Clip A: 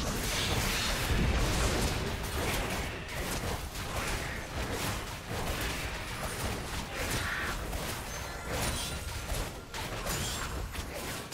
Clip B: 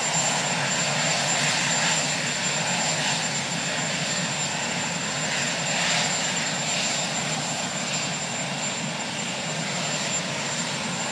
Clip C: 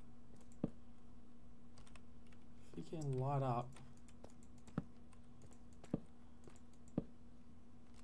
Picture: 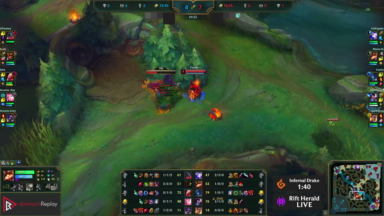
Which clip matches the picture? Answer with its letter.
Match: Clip A